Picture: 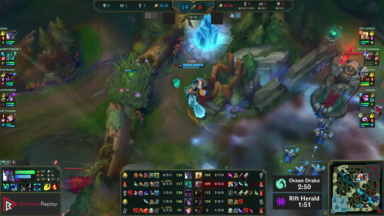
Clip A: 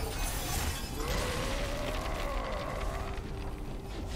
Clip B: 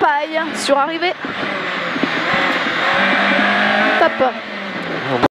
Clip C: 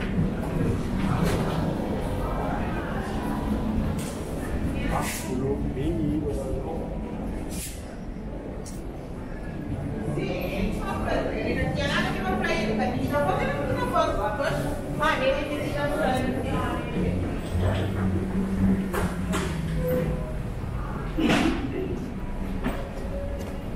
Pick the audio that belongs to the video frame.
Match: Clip A